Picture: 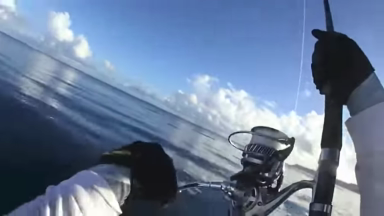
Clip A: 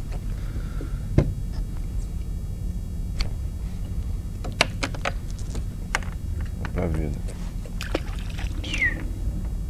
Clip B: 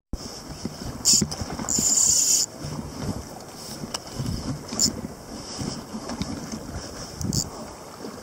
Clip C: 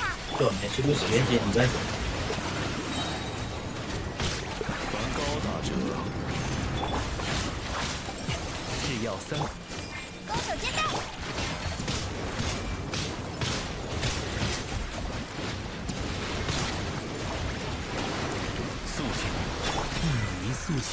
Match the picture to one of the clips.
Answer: B